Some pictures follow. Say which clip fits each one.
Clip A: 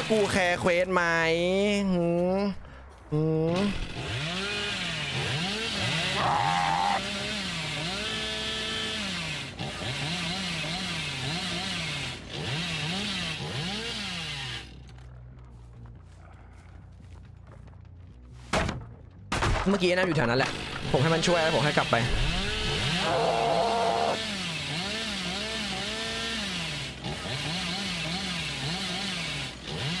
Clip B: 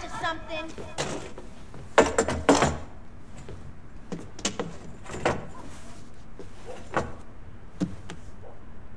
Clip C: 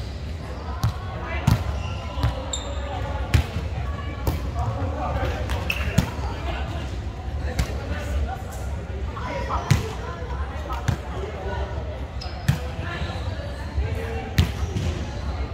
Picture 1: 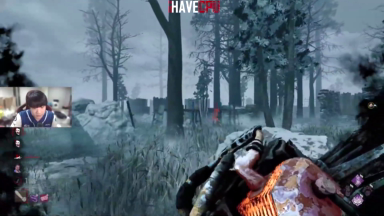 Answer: A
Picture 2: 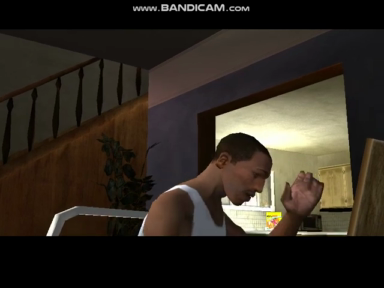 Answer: B